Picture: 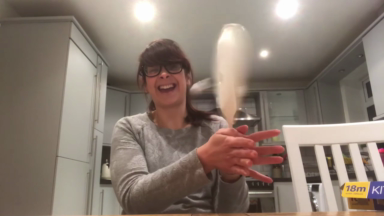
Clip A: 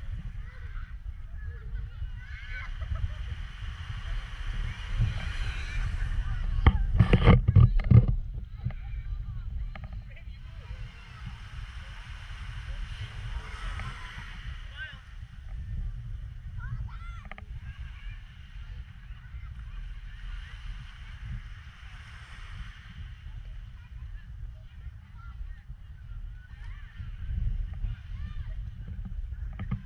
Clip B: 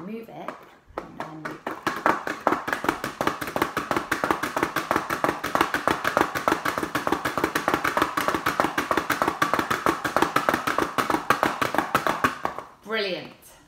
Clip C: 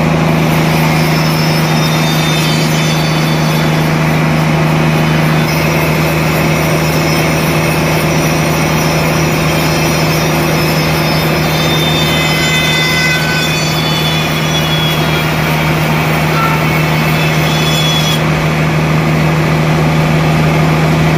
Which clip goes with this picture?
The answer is B